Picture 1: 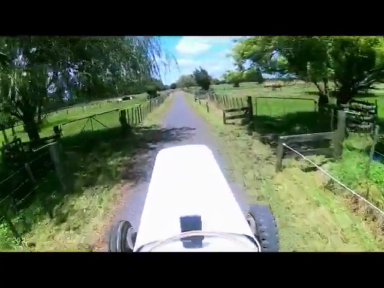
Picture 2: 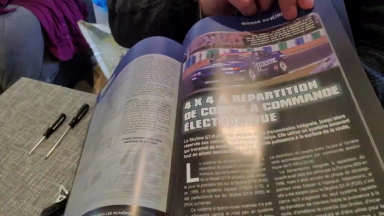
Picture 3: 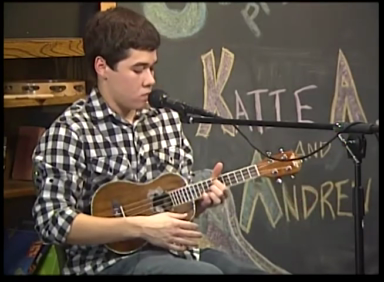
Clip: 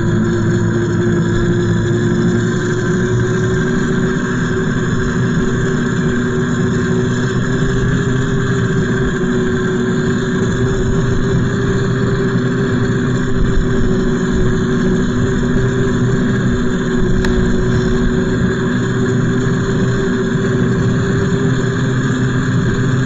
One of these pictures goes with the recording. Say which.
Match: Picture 1